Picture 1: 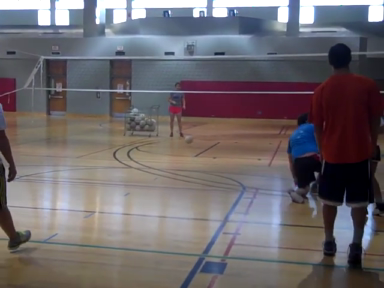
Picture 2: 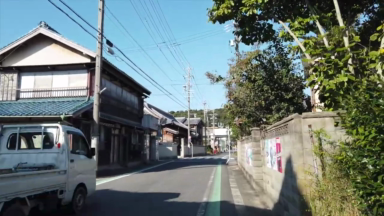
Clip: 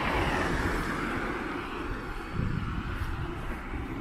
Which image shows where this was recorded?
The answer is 2